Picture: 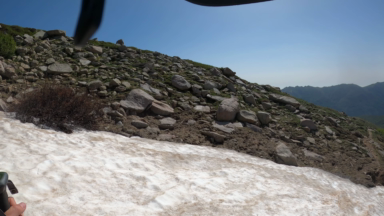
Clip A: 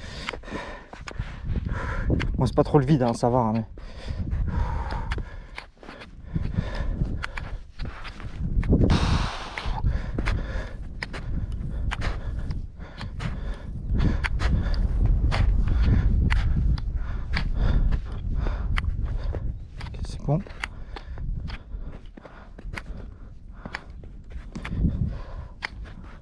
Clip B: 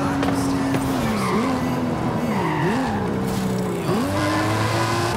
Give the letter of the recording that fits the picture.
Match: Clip A